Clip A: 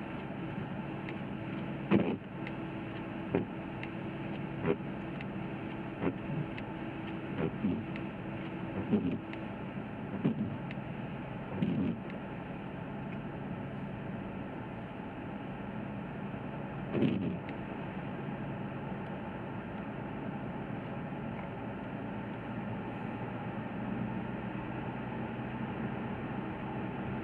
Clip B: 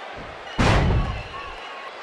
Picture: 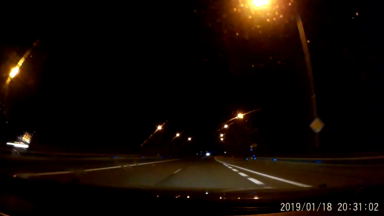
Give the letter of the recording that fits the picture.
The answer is A